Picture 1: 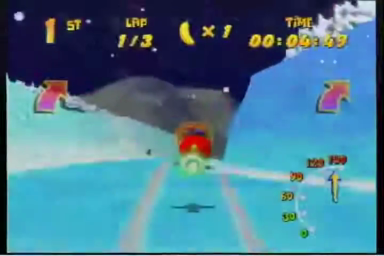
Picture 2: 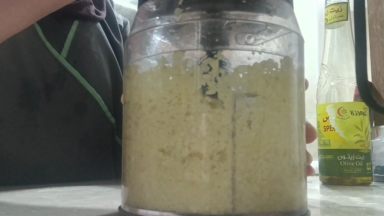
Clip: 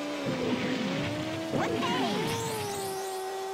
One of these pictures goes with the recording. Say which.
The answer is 1